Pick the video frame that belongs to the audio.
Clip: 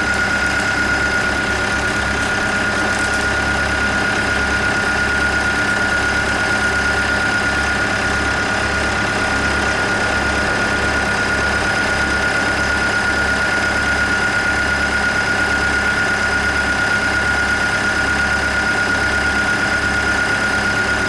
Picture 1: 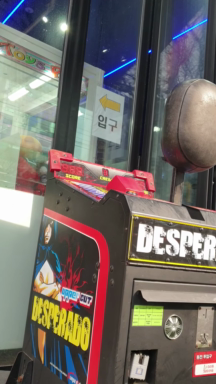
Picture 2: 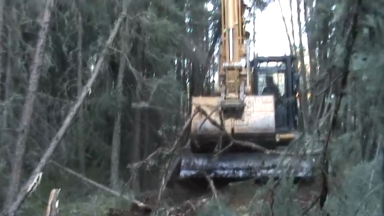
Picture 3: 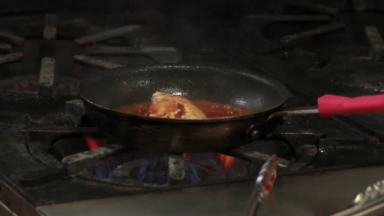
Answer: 2